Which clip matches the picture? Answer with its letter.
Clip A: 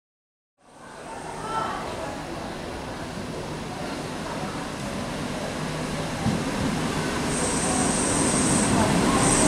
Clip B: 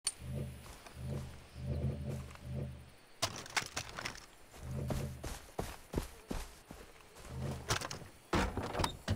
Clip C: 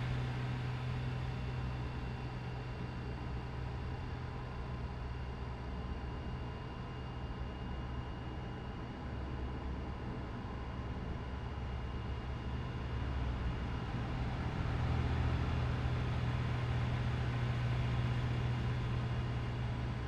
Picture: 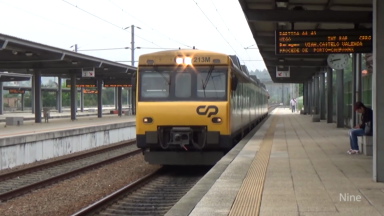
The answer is A